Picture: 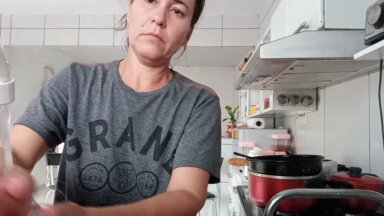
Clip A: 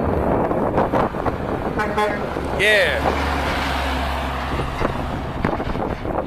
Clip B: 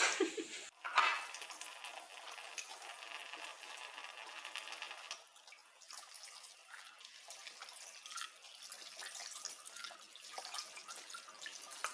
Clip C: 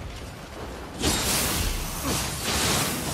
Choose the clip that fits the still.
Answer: B